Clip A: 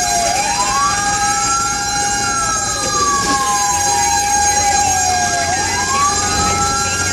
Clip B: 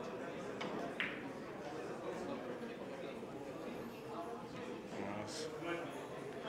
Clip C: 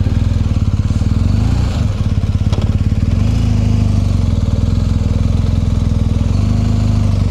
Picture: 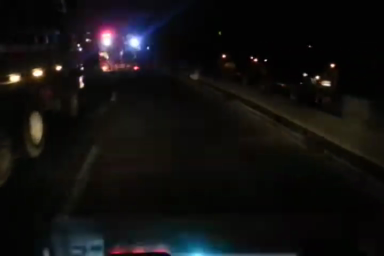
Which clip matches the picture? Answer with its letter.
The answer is A